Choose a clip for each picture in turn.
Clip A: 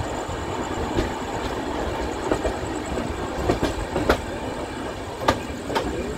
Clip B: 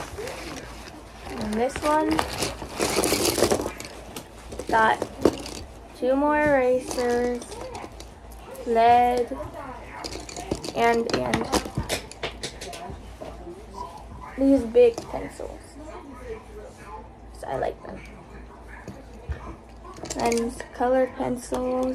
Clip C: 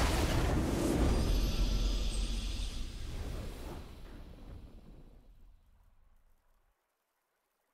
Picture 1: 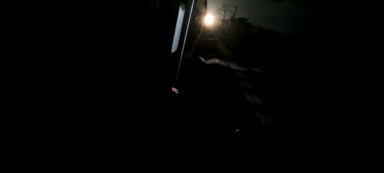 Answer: A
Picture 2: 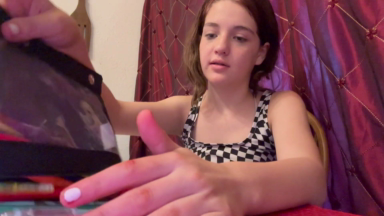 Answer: B